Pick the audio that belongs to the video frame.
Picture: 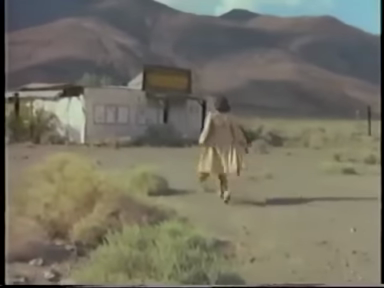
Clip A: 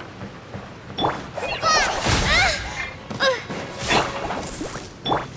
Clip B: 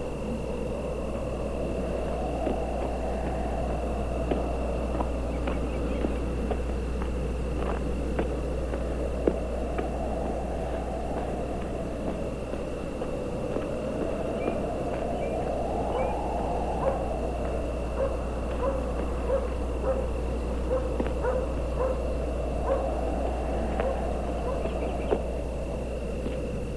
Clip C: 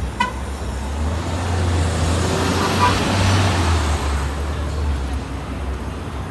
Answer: B